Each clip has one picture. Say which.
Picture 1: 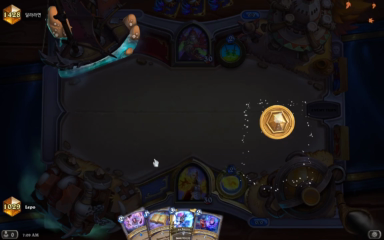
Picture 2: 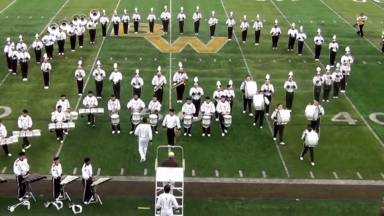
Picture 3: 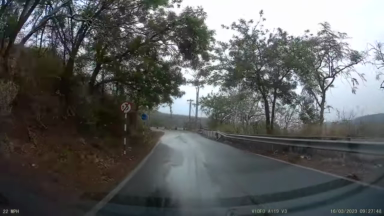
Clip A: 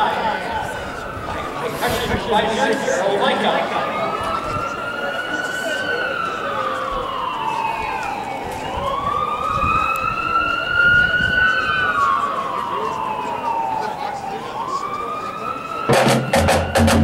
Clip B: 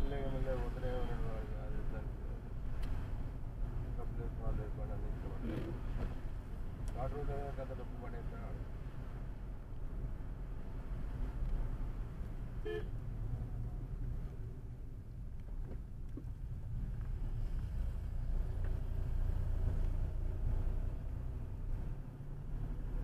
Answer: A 2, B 3